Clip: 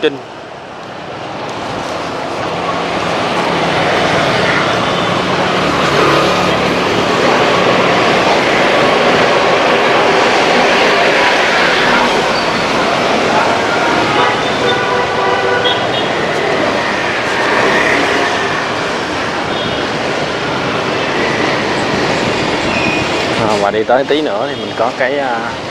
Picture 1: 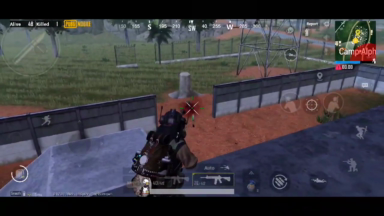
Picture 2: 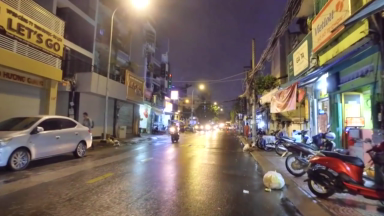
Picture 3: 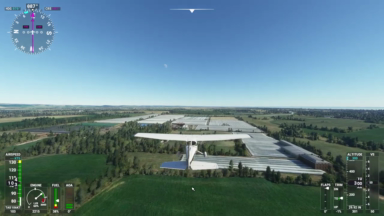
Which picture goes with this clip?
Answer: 2